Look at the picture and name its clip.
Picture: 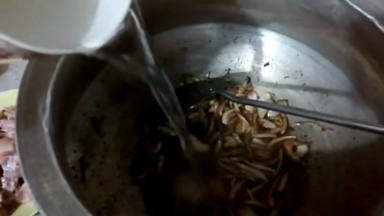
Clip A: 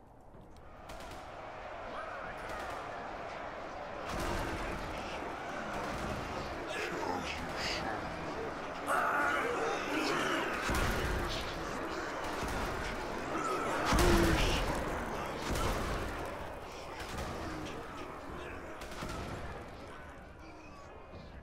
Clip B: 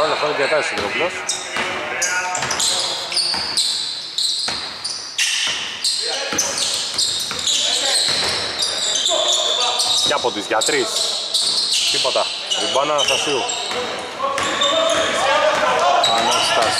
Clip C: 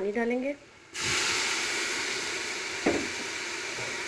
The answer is C